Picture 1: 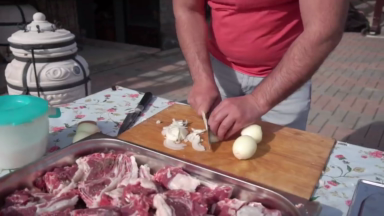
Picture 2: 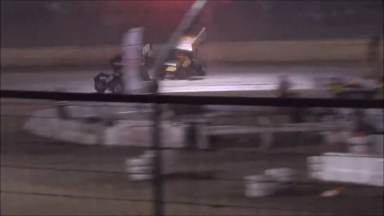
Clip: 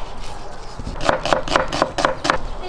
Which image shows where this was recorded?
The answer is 1